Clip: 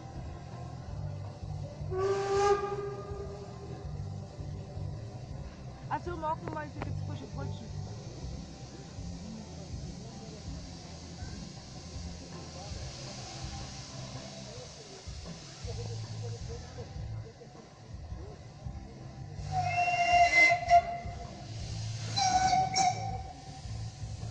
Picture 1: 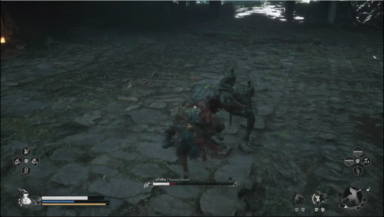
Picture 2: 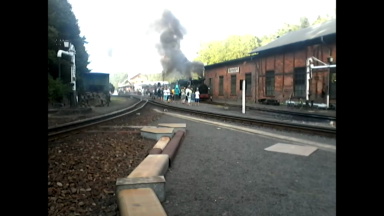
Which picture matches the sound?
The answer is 2